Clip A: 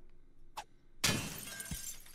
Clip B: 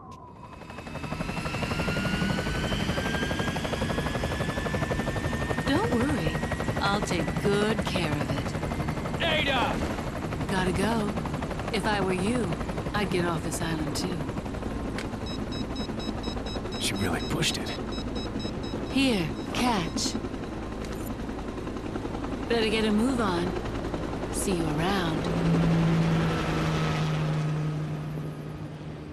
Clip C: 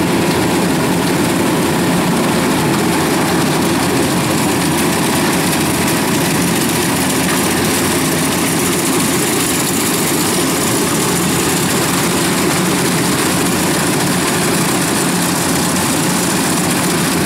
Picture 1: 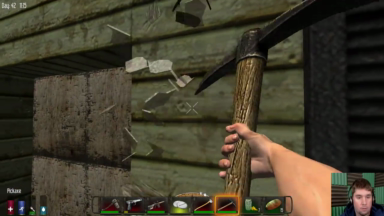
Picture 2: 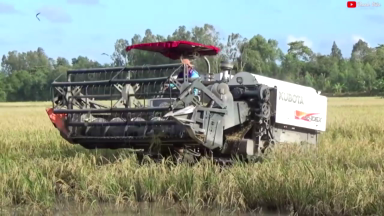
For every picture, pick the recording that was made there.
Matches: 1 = A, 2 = C